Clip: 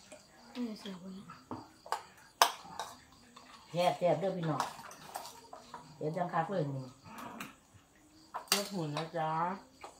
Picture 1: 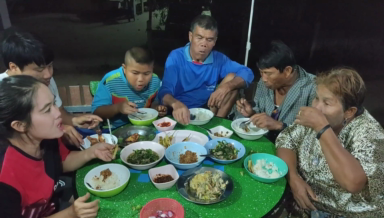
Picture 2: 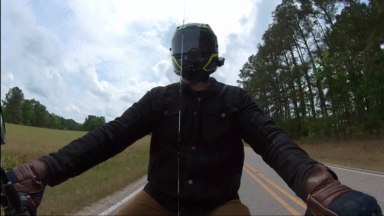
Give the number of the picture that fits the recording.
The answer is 1